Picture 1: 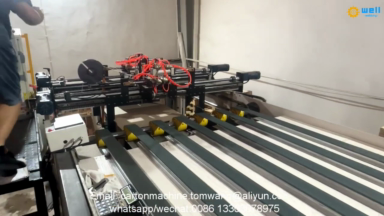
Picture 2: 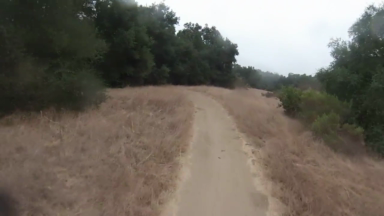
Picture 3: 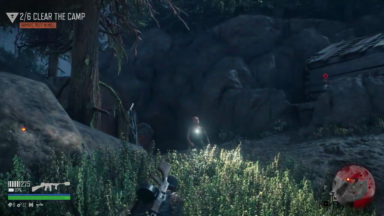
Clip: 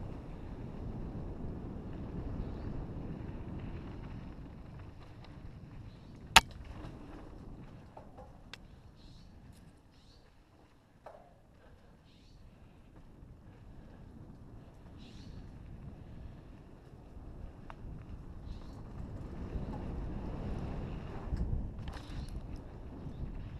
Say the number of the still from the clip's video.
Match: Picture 2